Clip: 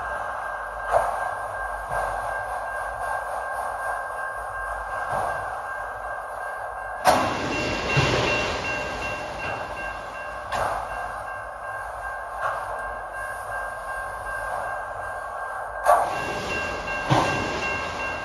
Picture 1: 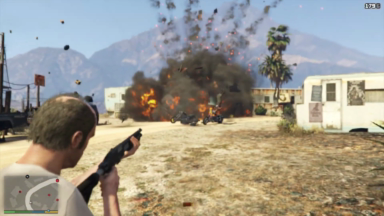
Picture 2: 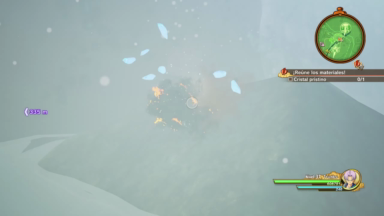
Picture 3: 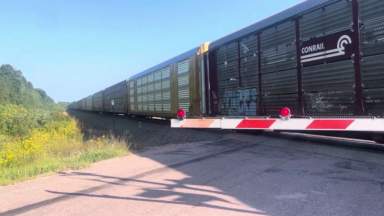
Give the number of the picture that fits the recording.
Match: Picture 3